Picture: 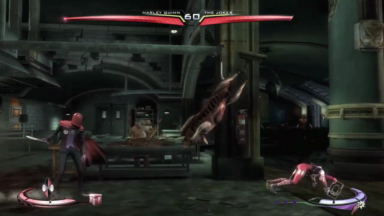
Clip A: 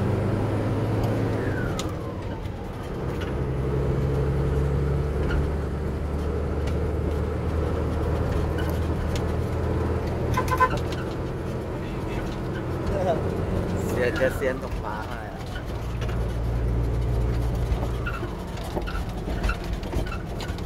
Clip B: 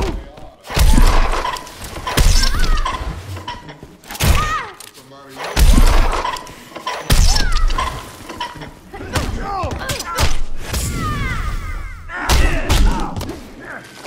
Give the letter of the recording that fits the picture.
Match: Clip B